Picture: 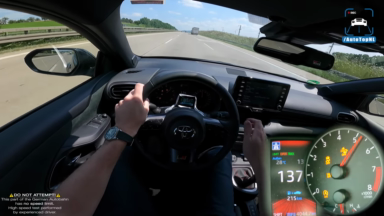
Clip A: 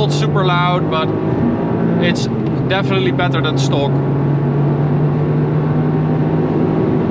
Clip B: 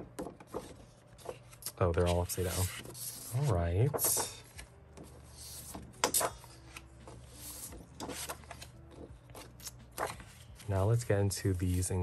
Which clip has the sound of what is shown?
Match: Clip A